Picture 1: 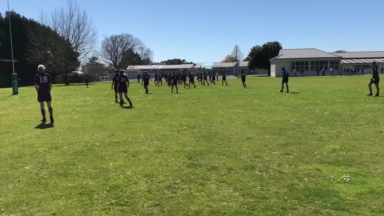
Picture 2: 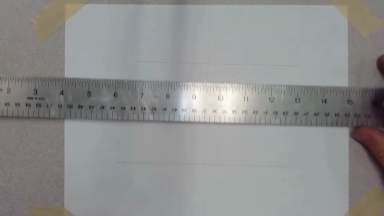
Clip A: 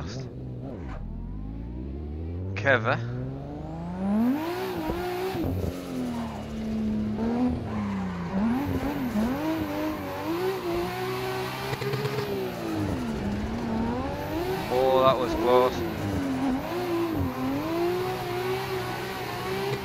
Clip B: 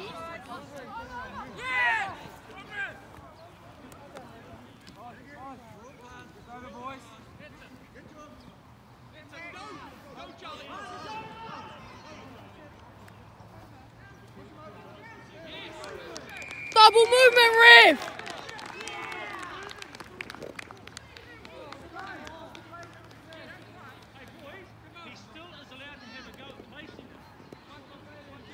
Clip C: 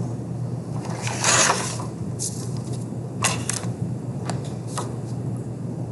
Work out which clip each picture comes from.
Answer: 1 B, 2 C